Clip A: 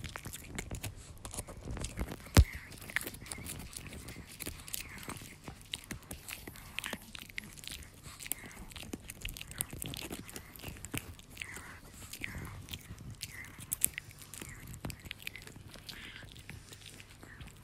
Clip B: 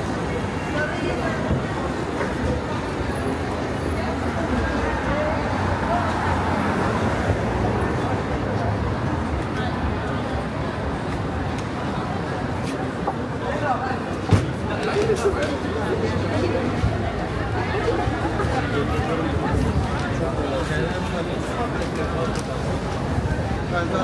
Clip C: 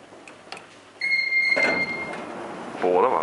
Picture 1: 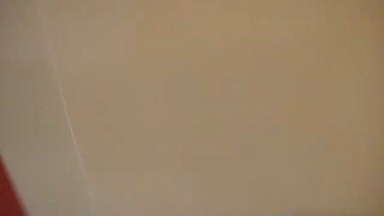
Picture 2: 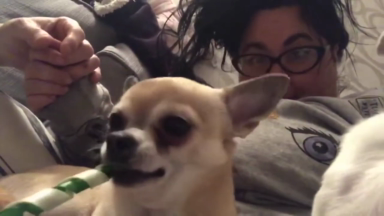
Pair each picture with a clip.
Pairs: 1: C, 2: A